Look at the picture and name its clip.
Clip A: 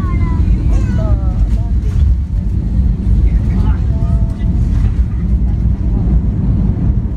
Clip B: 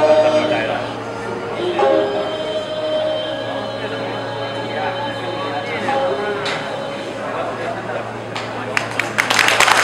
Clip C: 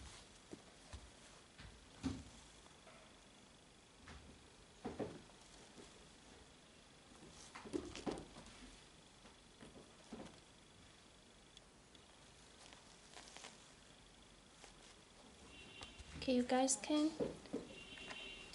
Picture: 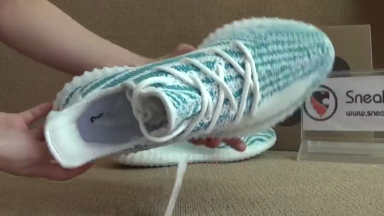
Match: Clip C